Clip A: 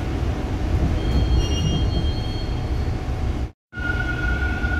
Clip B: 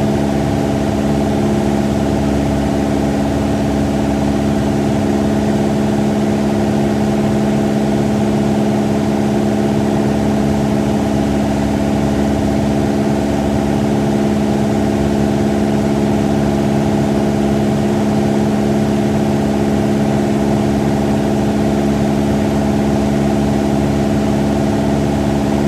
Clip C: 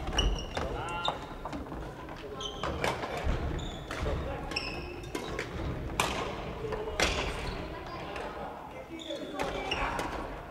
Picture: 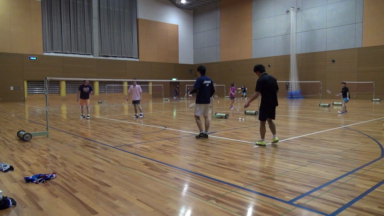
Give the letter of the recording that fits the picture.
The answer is C